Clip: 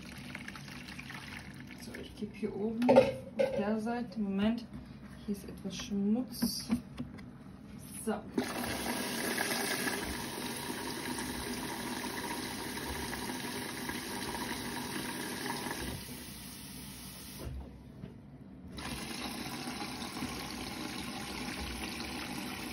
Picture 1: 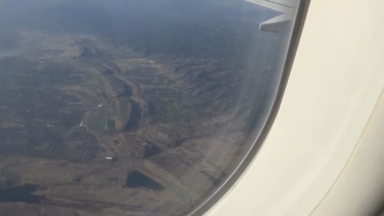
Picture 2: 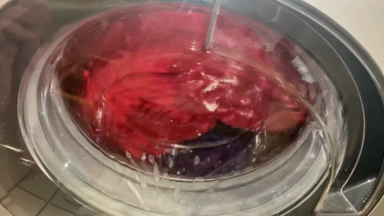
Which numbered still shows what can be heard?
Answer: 2